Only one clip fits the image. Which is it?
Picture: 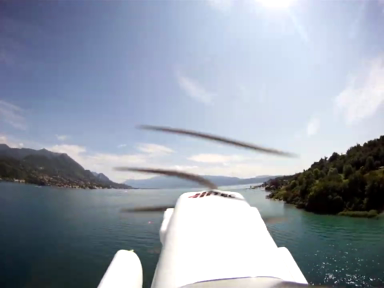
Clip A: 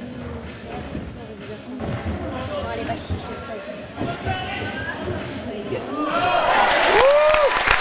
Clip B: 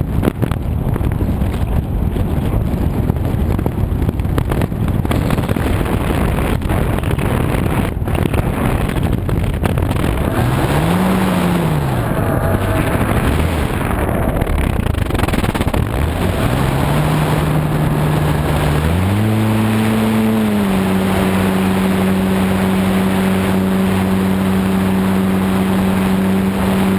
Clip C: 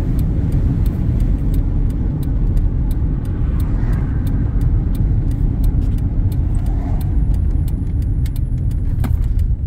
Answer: B